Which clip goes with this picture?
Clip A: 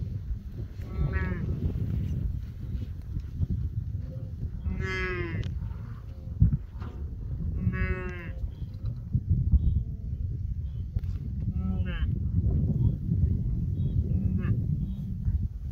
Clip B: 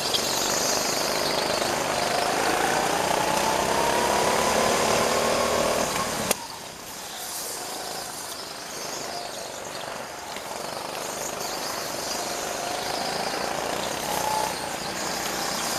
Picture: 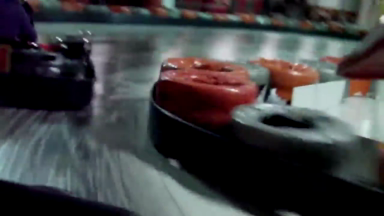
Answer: B